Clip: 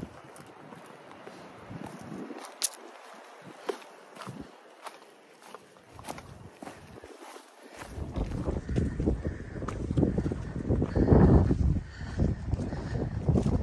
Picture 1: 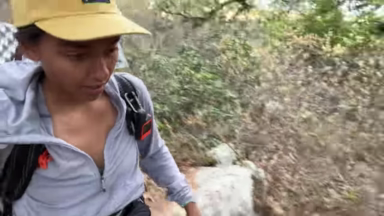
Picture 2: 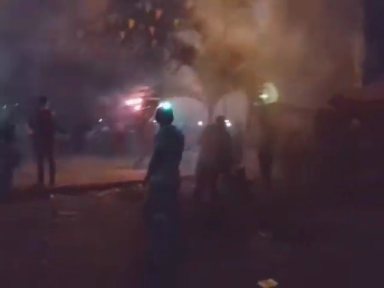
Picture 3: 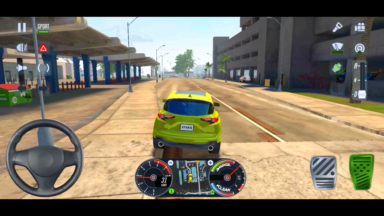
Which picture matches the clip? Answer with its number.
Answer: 1